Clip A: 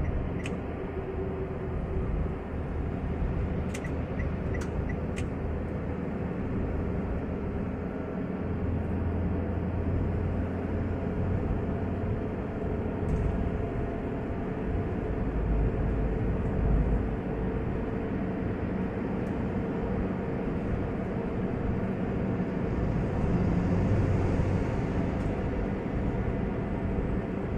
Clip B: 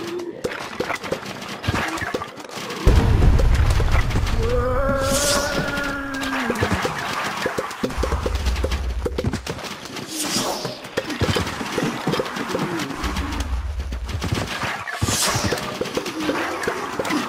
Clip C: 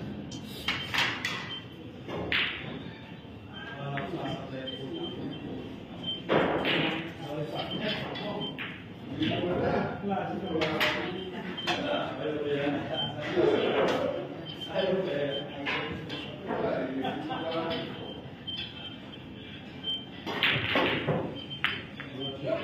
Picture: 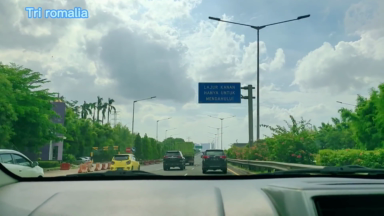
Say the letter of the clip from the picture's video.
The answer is A